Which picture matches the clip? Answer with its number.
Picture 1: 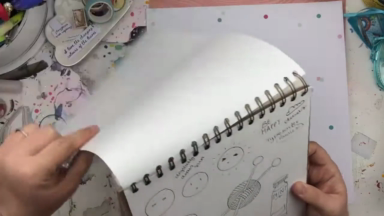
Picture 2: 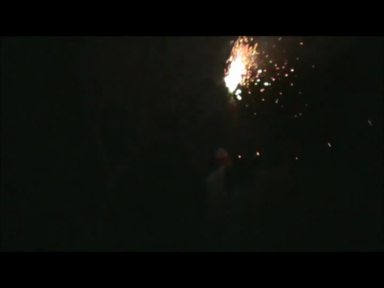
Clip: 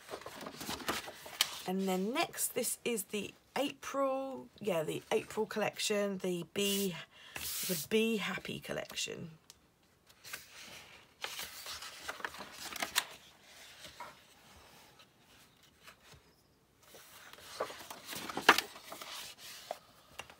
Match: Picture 1